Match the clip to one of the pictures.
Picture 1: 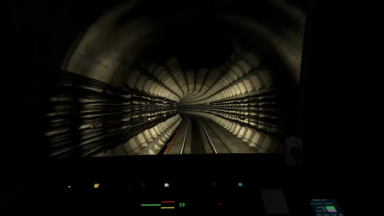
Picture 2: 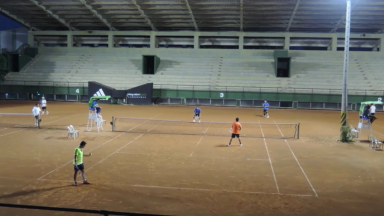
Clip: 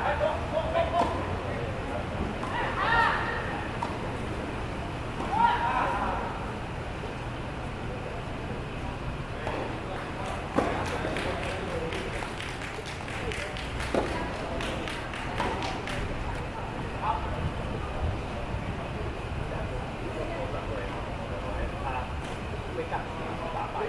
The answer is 2